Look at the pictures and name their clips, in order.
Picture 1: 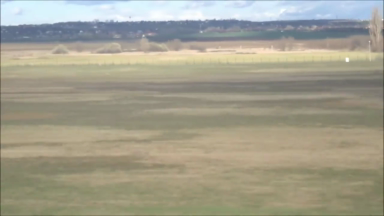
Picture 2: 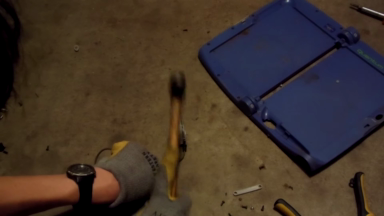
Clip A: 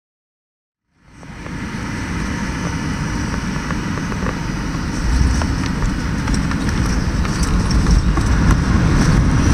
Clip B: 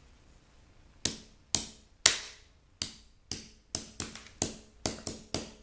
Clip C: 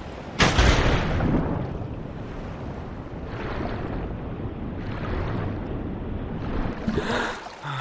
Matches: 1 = A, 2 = B